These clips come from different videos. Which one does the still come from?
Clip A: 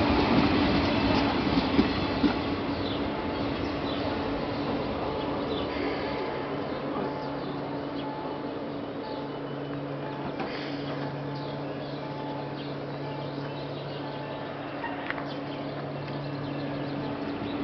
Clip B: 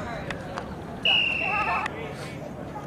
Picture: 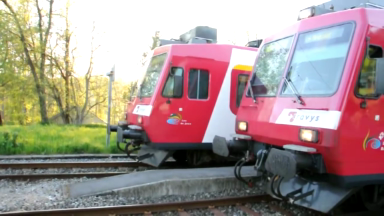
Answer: A